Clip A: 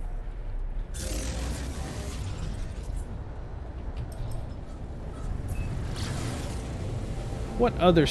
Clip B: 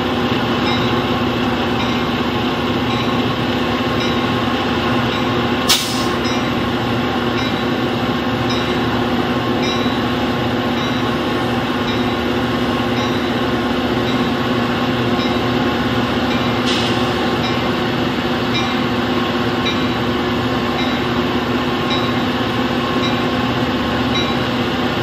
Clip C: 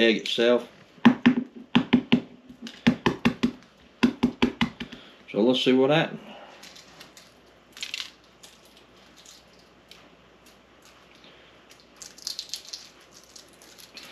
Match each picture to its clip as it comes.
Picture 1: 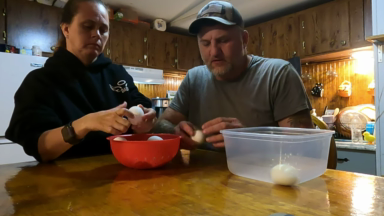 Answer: C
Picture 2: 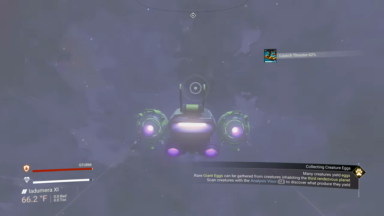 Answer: A